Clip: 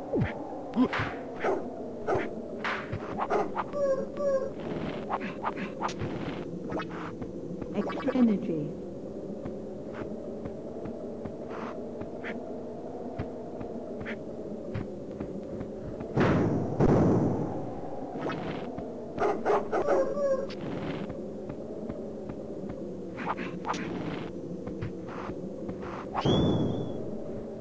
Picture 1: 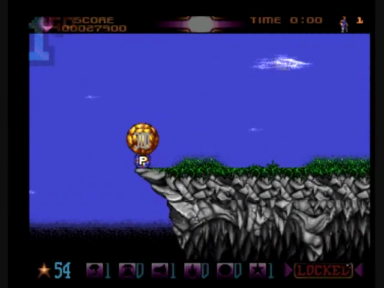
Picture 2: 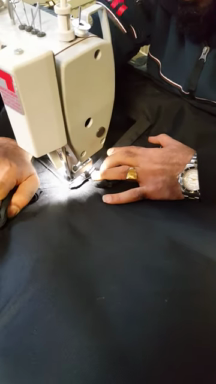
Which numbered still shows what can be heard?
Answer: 1